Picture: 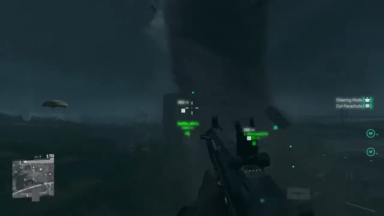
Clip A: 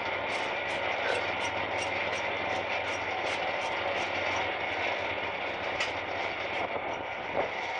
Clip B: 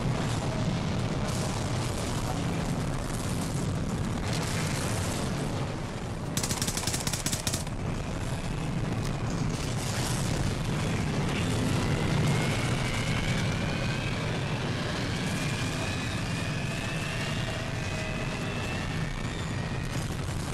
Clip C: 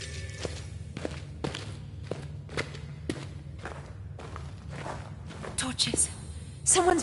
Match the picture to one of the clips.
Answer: B